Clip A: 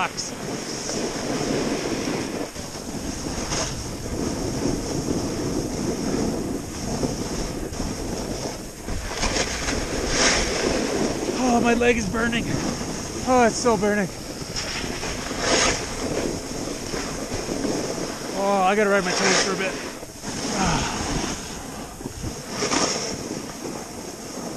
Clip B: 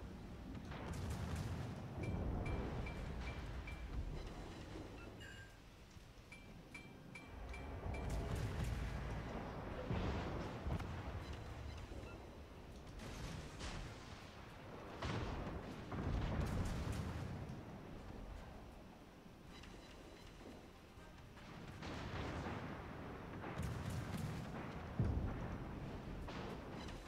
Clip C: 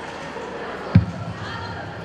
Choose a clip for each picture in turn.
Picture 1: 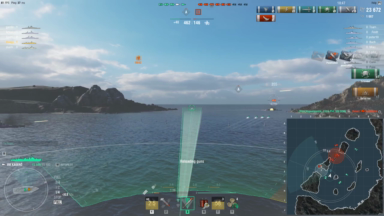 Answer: B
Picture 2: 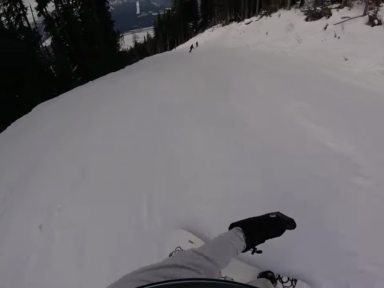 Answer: A